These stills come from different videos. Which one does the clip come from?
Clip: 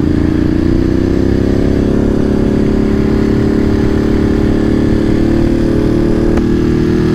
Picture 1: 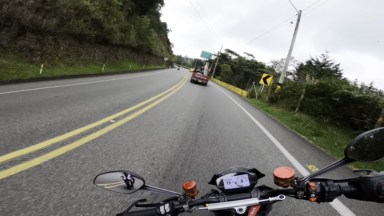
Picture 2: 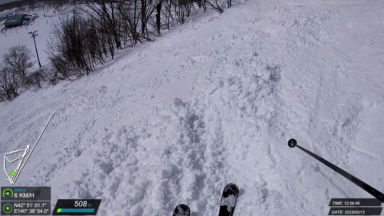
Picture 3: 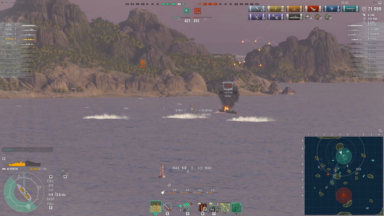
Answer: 1